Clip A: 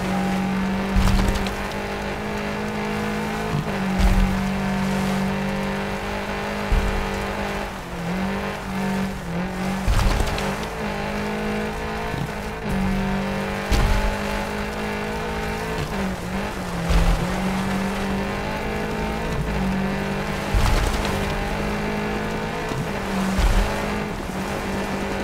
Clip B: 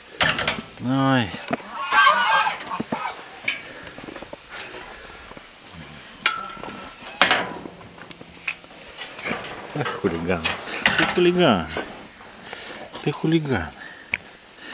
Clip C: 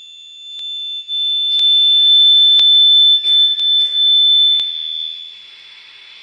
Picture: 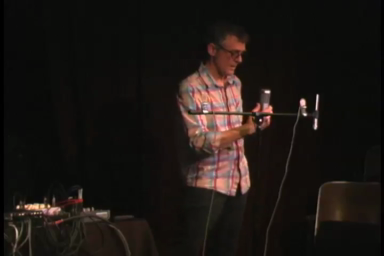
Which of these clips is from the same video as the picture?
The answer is C